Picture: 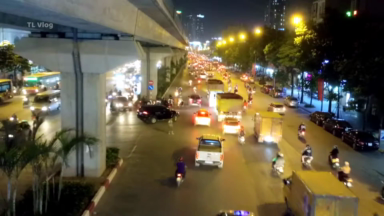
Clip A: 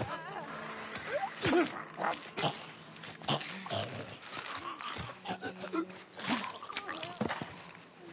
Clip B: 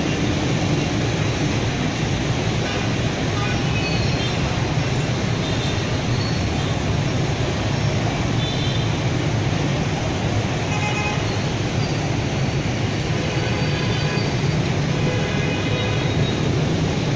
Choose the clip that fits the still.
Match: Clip B